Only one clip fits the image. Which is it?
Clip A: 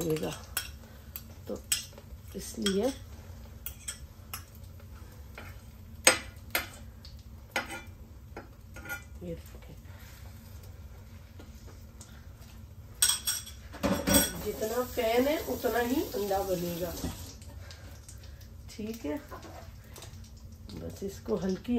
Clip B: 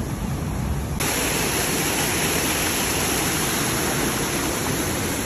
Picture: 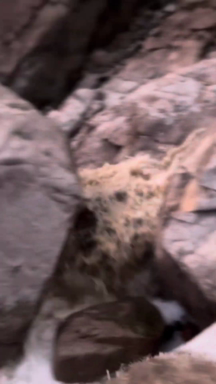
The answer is B